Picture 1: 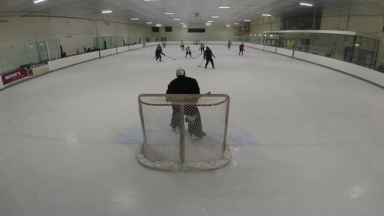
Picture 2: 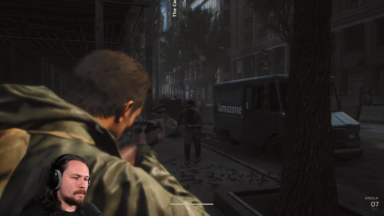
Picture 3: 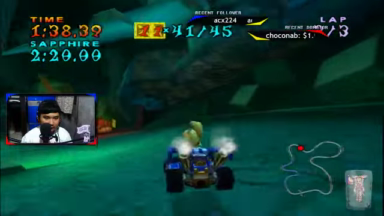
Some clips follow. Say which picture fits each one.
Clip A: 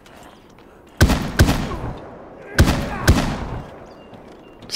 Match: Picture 2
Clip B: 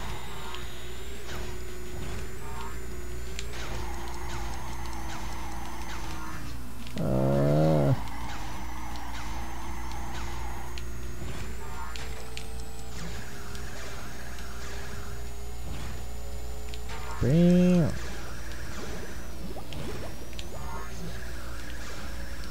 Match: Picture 3